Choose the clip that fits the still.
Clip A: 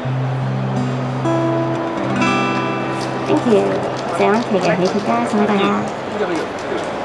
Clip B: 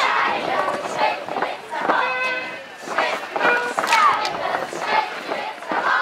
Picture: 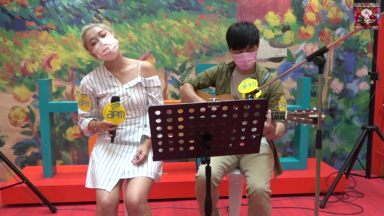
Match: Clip A